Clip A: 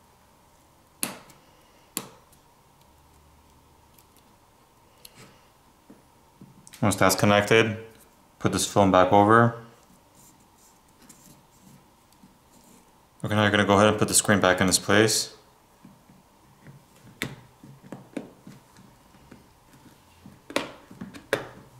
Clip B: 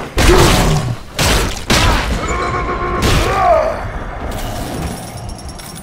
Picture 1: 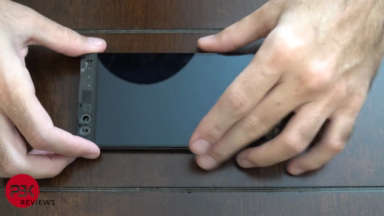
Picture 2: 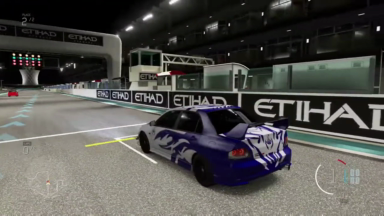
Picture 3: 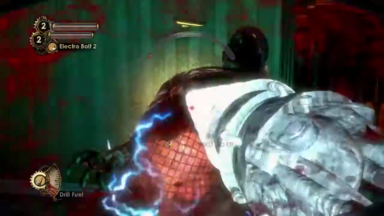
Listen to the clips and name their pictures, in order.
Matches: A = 1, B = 3